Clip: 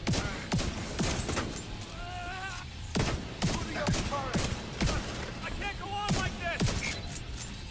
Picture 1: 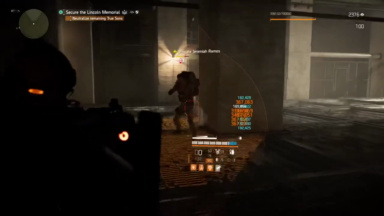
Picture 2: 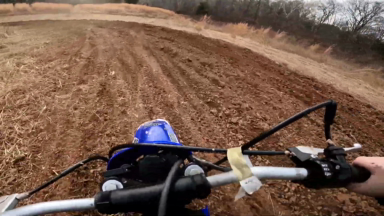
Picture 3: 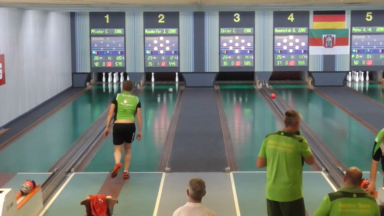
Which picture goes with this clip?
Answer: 1